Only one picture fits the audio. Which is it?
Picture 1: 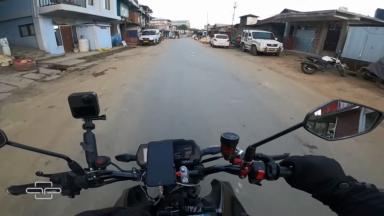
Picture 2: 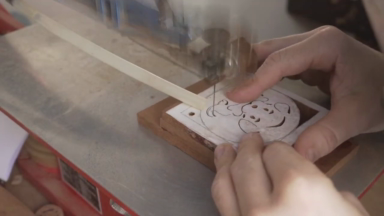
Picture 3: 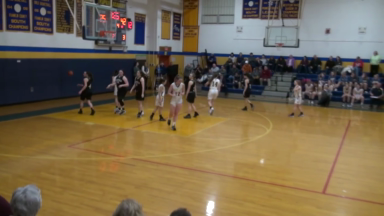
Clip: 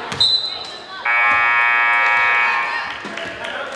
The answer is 3